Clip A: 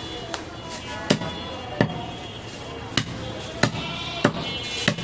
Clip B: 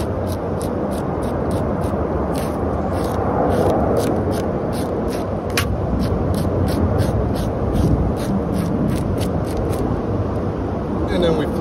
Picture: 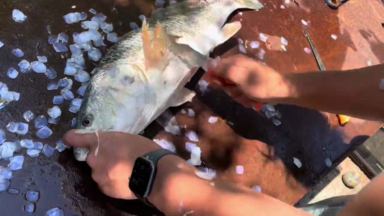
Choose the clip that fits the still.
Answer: B